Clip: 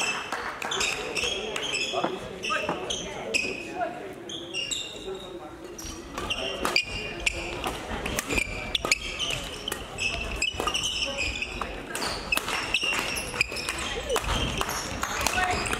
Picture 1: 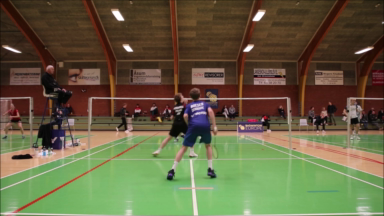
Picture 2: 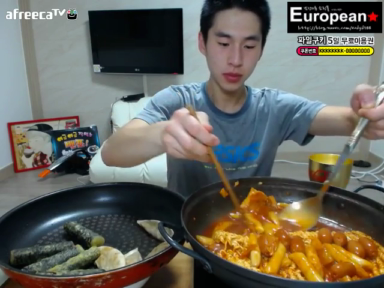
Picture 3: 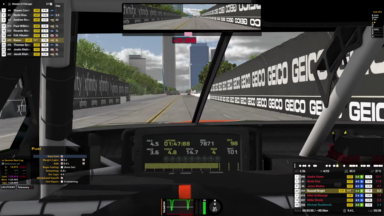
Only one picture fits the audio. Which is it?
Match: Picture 1